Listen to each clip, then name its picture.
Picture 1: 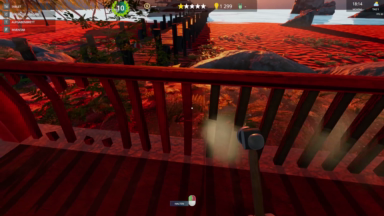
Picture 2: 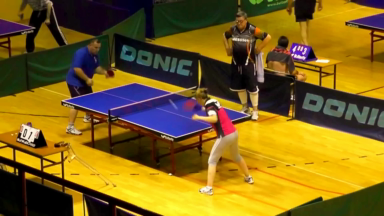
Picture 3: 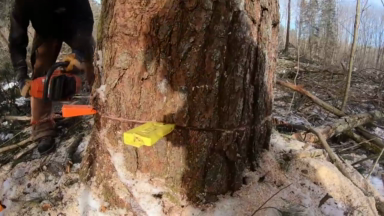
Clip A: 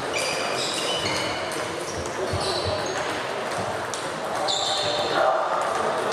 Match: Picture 2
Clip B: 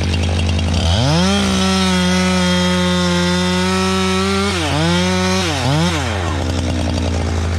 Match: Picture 3